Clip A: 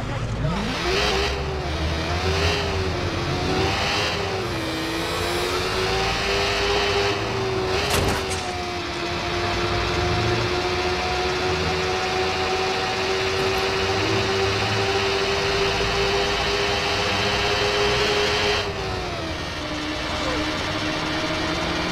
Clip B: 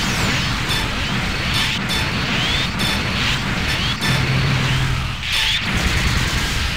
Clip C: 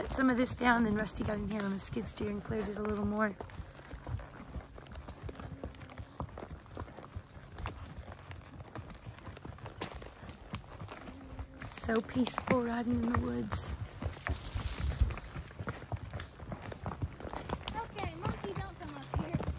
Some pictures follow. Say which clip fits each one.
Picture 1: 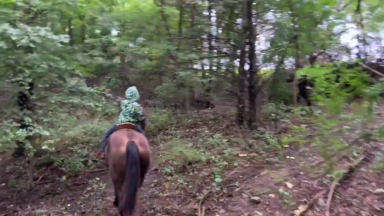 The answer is C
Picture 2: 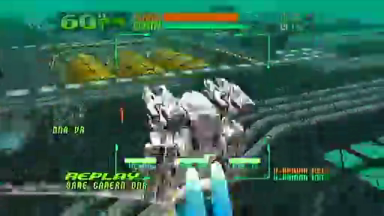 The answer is B